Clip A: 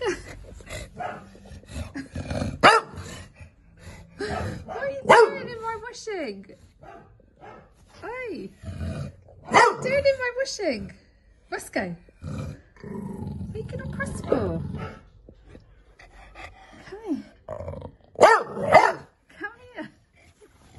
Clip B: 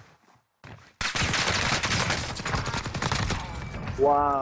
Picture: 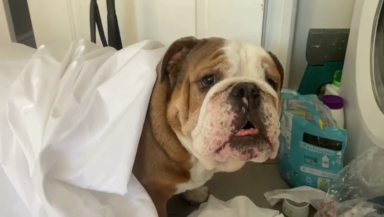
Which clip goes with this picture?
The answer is A